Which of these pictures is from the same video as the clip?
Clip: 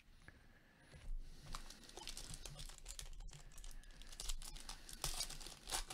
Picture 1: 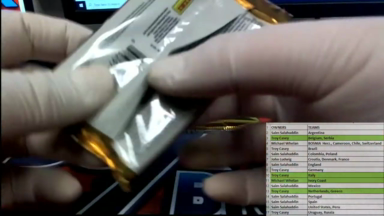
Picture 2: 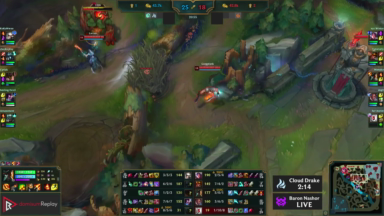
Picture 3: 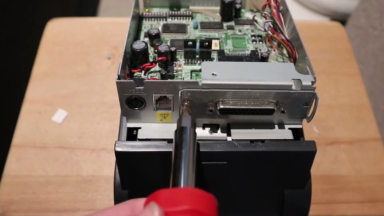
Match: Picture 1